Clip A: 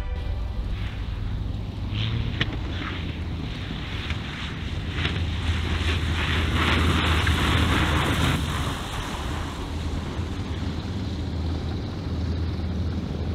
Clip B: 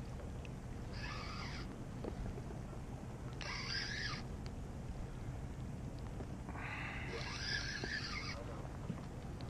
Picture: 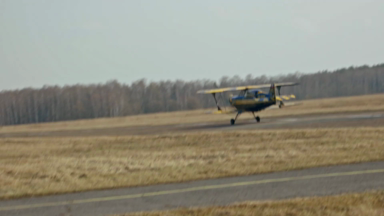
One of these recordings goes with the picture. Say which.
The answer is A